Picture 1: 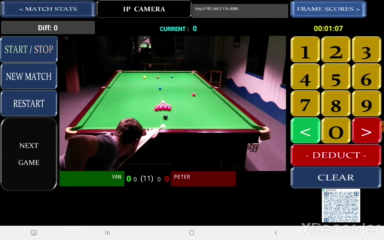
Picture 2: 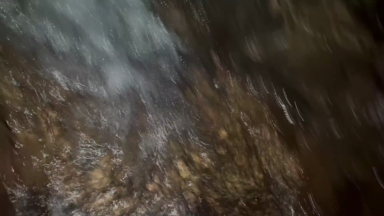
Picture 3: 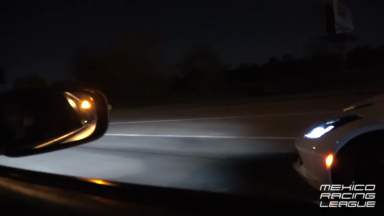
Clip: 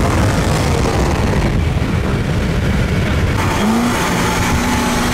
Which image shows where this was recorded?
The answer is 3